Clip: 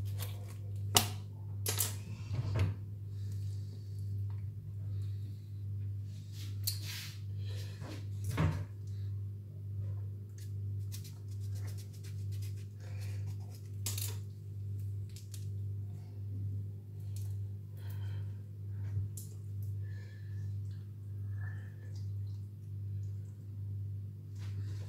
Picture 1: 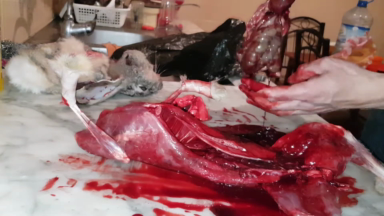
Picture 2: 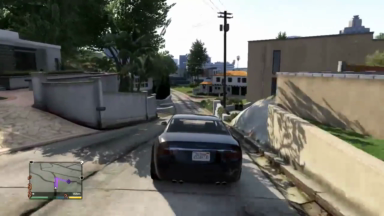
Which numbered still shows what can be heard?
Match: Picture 1